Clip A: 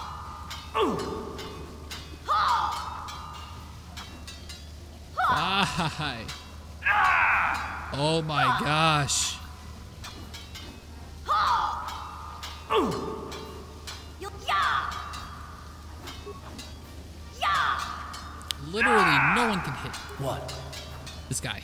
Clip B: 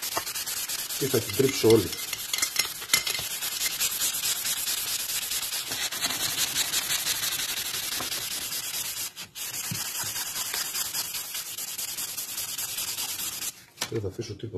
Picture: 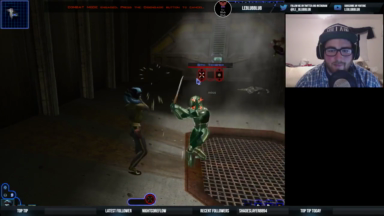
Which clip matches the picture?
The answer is A